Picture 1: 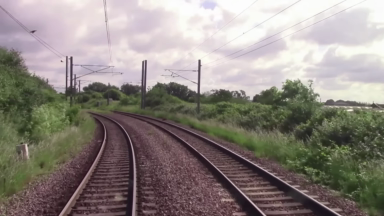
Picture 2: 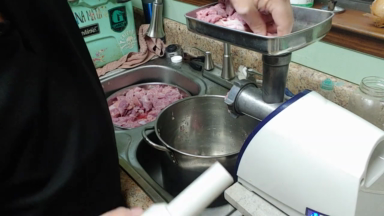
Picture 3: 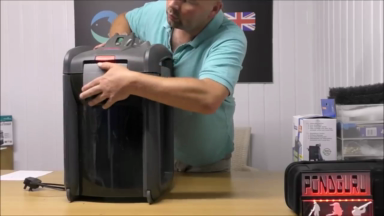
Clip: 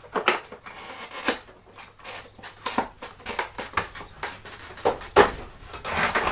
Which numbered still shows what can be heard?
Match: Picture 3